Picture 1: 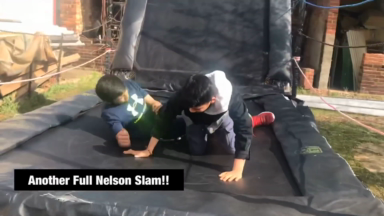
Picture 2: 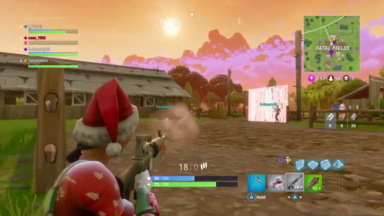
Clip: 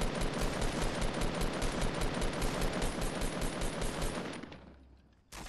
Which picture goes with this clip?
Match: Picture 2